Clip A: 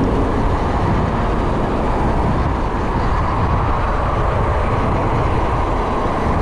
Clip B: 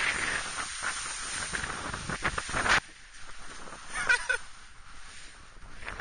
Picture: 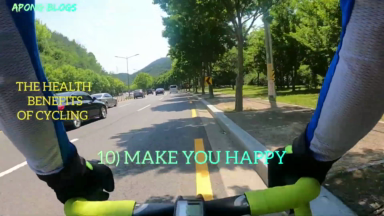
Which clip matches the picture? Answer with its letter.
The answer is A